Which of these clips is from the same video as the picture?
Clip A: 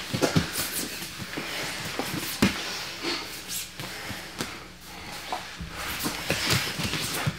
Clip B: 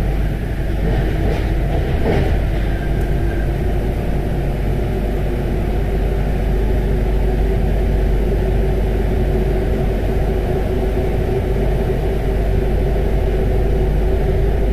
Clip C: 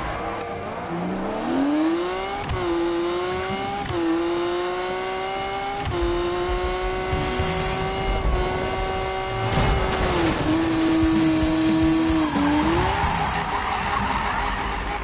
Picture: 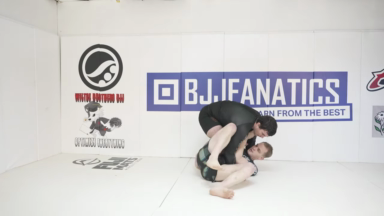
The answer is A